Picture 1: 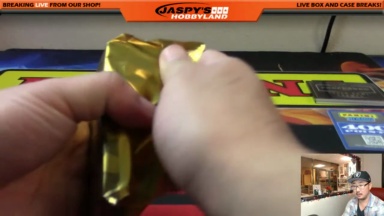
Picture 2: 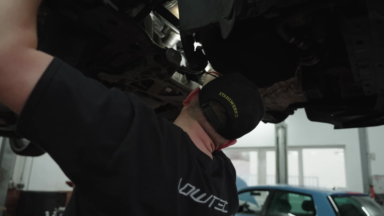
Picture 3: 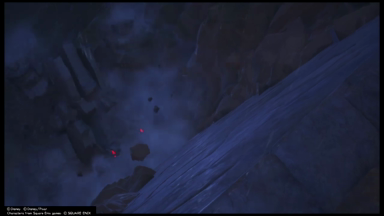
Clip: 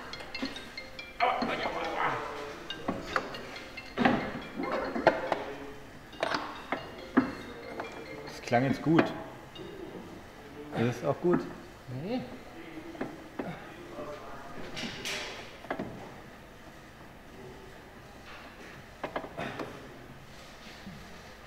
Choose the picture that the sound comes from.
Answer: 2